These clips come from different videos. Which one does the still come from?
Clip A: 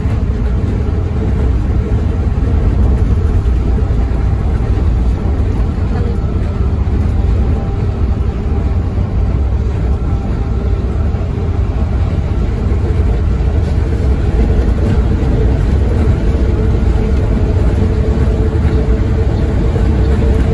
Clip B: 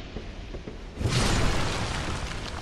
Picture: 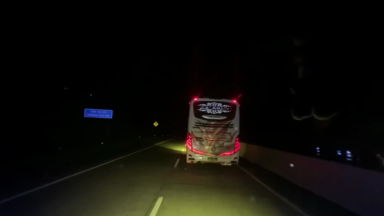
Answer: A